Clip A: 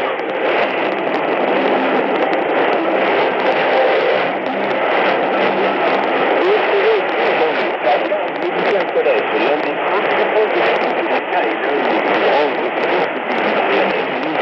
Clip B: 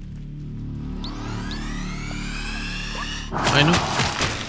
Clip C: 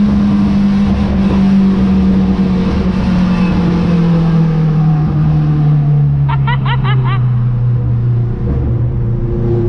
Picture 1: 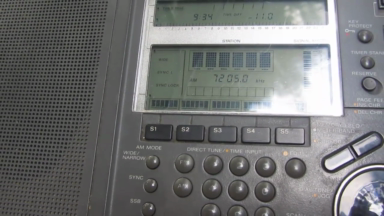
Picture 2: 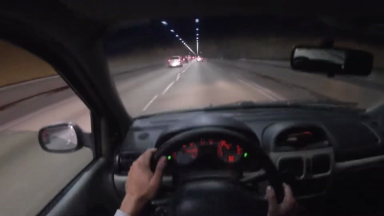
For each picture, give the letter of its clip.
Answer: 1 A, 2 C